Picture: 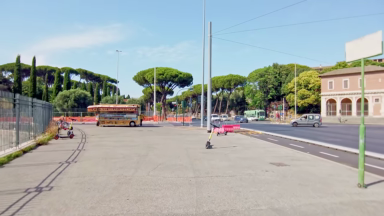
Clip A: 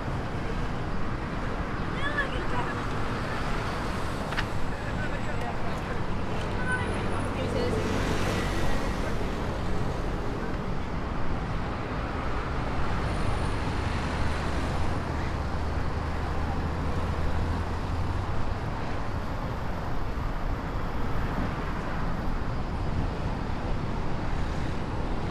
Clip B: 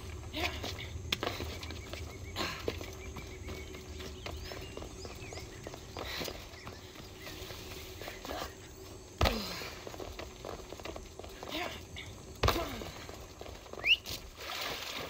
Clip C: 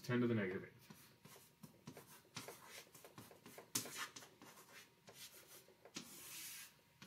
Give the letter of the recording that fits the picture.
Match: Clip A